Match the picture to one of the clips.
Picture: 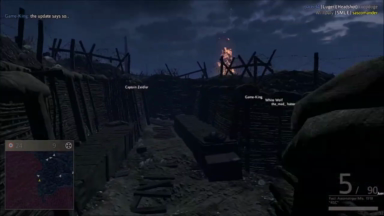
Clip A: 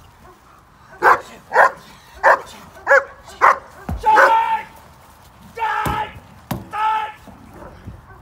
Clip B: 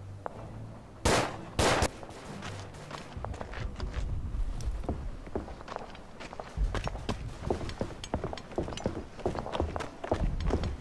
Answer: B